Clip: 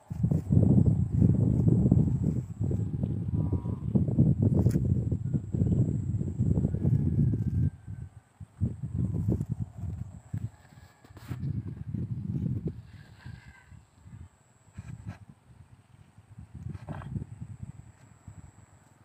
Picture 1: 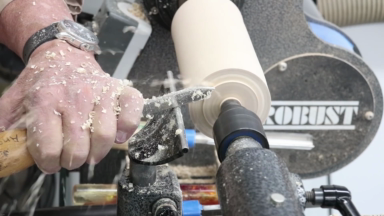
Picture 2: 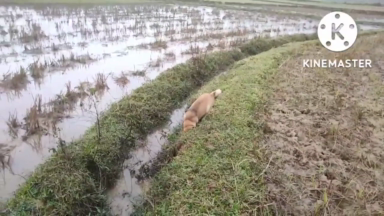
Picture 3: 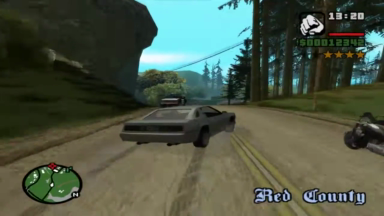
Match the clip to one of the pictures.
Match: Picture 2